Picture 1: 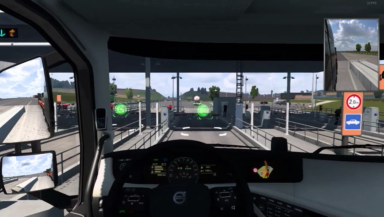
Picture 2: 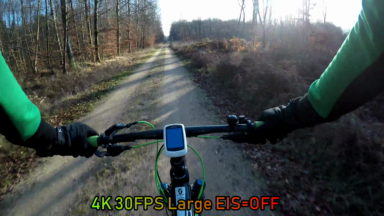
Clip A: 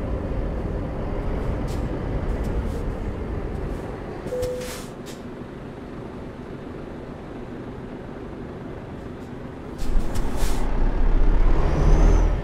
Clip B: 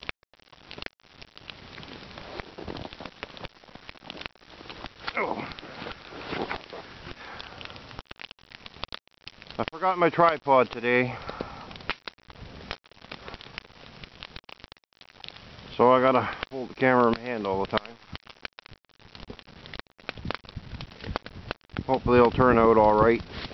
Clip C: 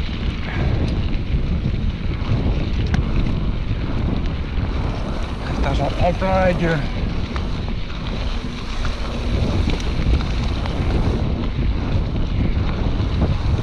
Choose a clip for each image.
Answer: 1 A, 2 C